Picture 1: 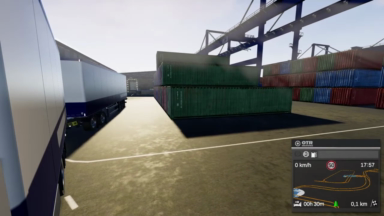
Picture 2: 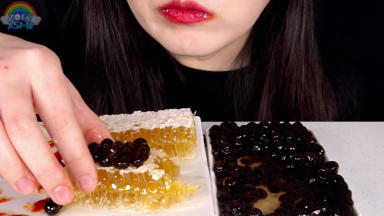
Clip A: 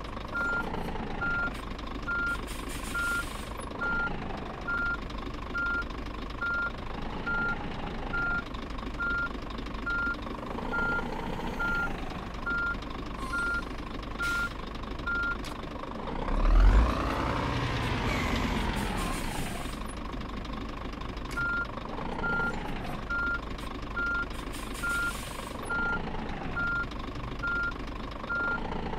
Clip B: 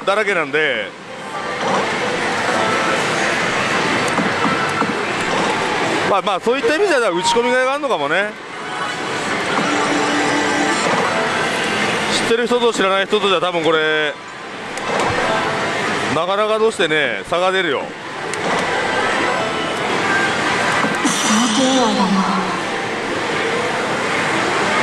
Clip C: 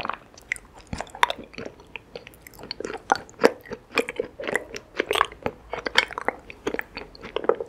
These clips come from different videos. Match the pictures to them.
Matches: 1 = A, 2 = C